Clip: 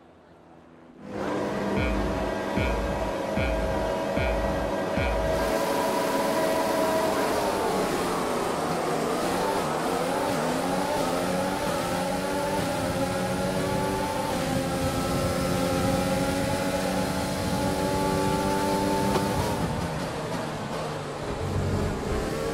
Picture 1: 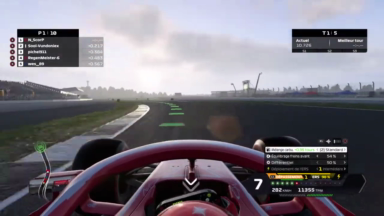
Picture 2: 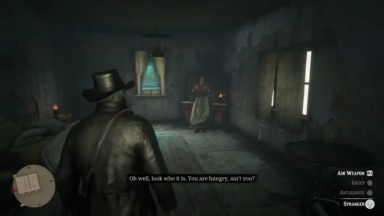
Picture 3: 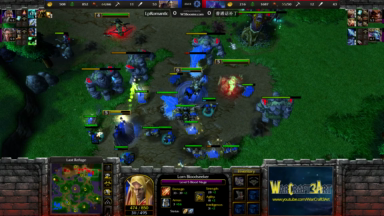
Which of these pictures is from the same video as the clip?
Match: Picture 1